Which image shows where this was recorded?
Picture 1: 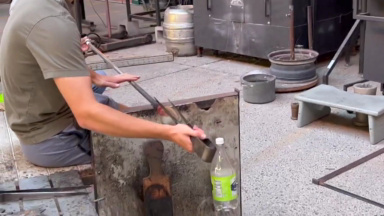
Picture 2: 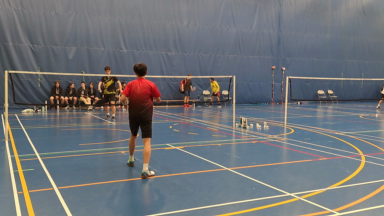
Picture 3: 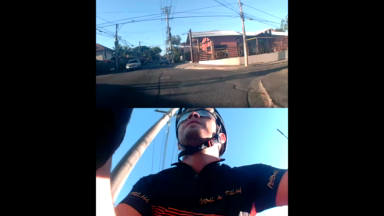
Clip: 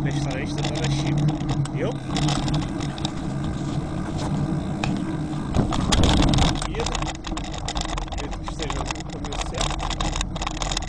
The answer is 3